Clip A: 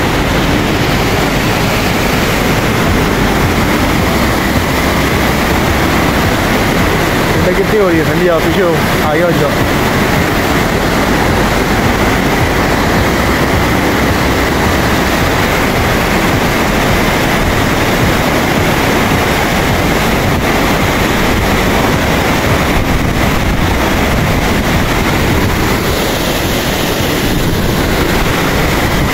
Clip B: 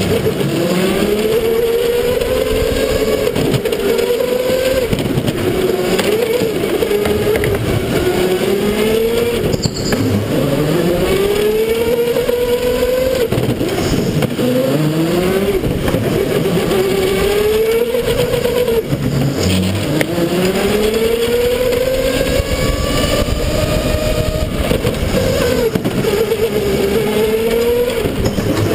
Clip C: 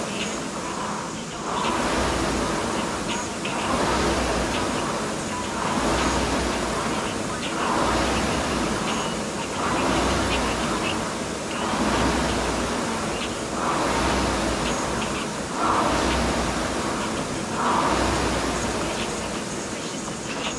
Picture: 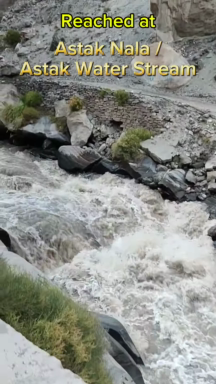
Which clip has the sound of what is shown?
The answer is A